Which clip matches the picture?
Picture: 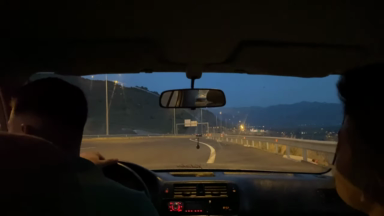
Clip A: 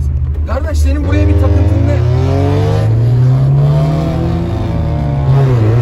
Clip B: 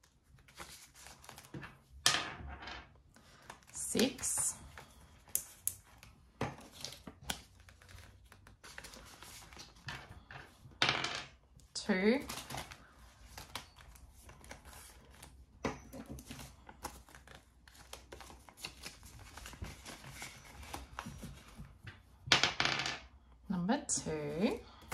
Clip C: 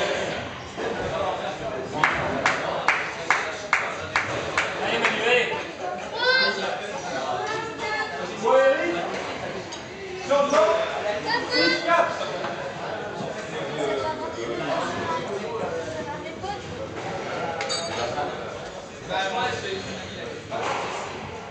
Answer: A